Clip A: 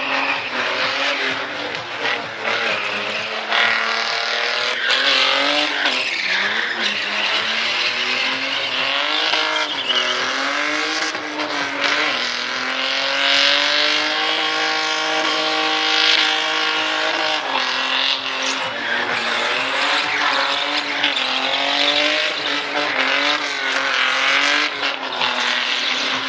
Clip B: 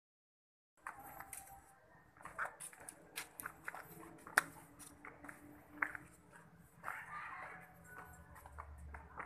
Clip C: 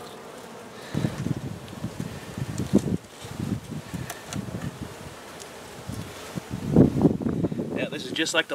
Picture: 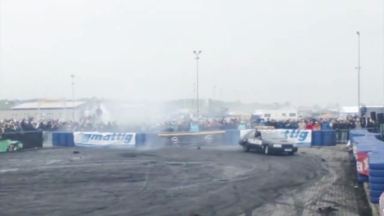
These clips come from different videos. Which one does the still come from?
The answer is A